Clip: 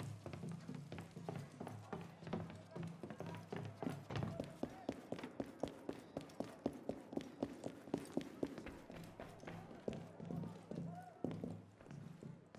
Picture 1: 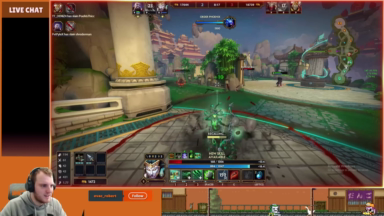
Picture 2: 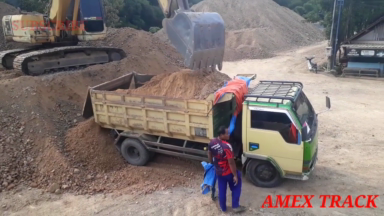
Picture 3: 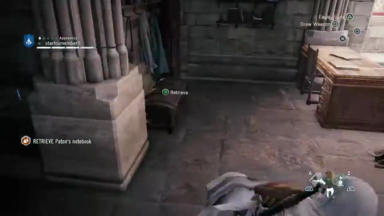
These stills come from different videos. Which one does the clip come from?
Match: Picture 3